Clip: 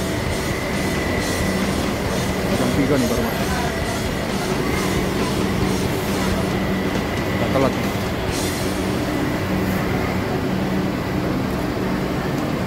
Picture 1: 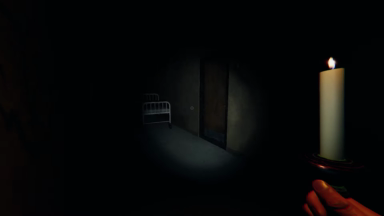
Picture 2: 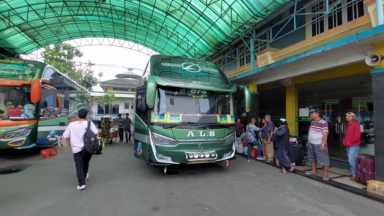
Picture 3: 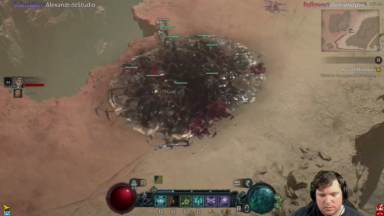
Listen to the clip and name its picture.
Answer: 2